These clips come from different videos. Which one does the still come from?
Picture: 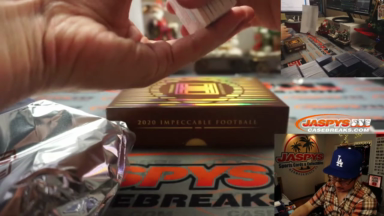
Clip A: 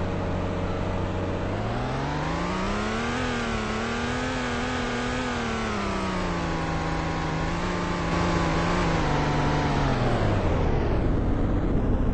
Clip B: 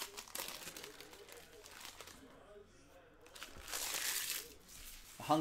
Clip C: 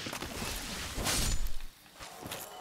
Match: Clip B